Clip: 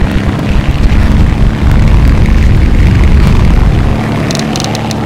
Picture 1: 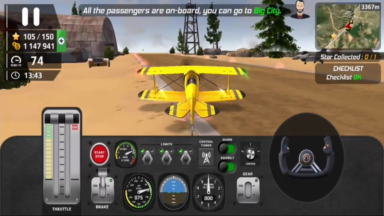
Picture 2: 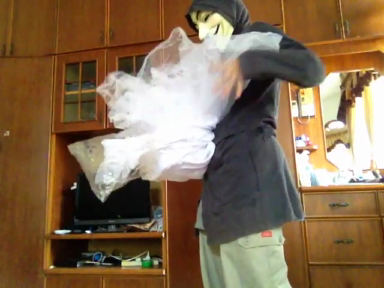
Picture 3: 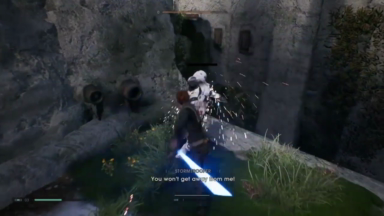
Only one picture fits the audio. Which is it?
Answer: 1